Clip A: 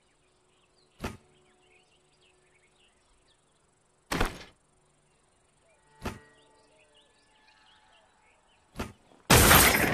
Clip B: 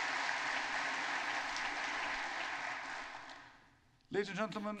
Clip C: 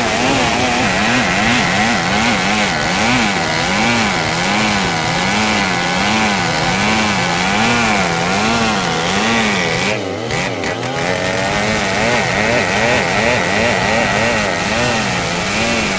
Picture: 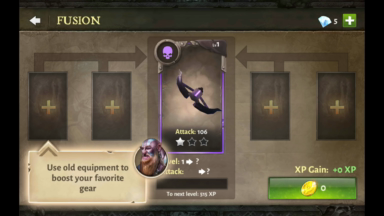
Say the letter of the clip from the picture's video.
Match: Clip A